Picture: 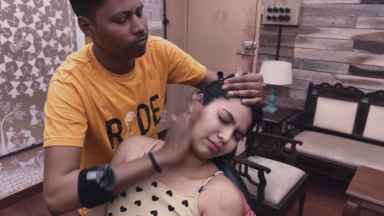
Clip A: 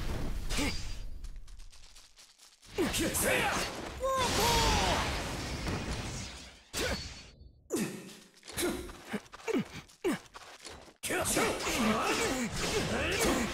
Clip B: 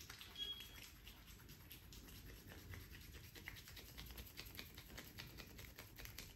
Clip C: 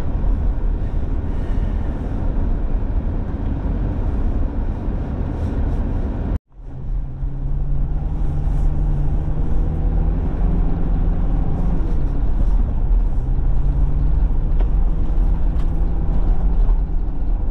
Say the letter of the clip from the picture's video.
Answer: B